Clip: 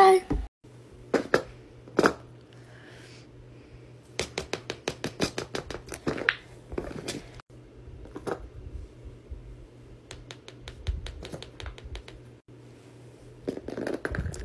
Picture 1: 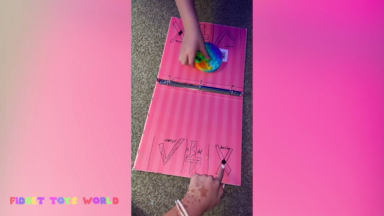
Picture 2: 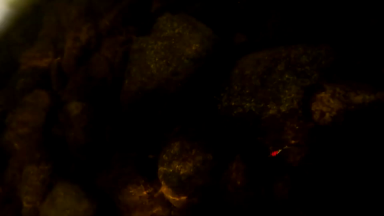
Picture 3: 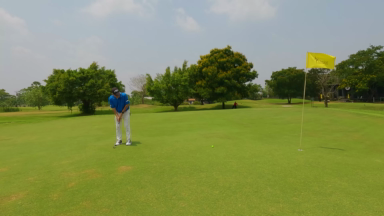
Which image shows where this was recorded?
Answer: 1